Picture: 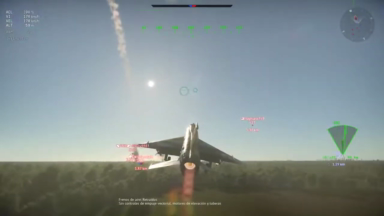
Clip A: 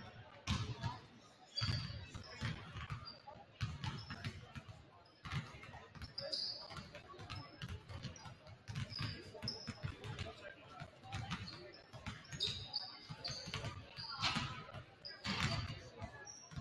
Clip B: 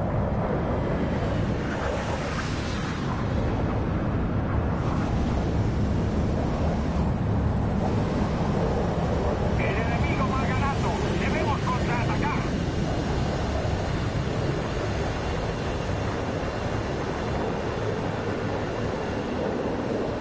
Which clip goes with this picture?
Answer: B